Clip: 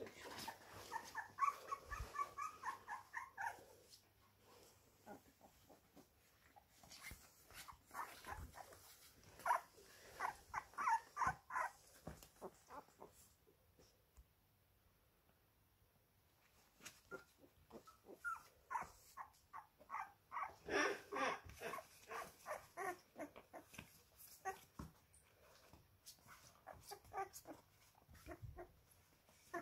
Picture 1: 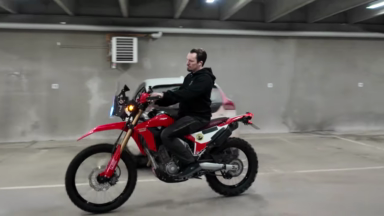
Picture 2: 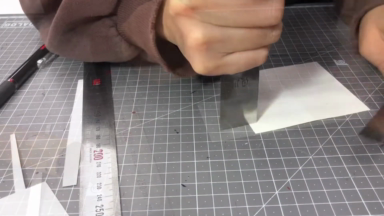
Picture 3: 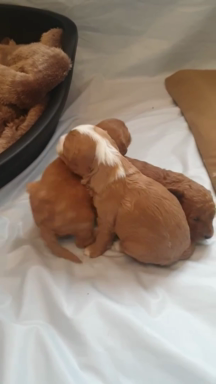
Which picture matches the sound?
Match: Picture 3